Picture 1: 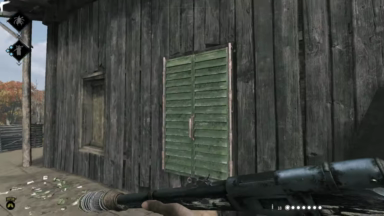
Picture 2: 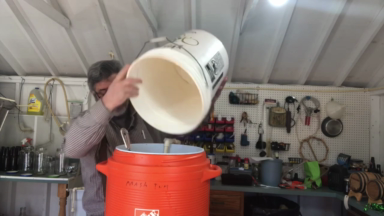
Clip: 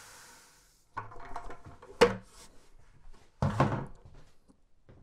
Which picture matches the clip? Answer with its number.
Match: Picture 2